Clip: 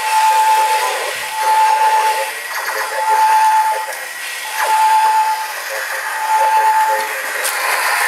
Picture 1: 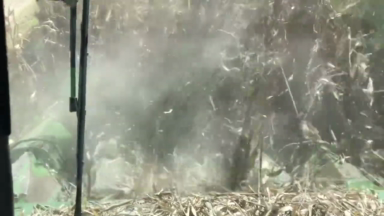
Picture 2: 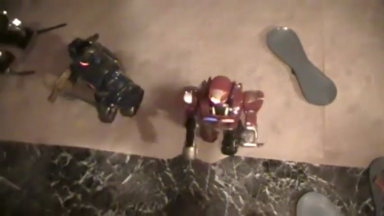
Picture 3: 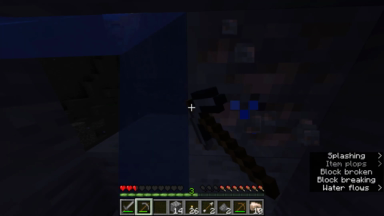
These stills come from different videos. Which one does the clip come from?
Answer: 2